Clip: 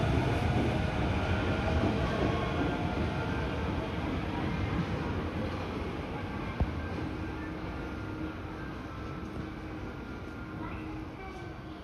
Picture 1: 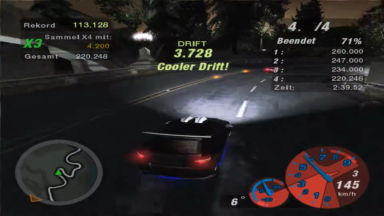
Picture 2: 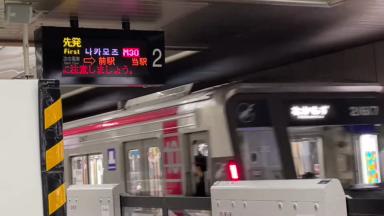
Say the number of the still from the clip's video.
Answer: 2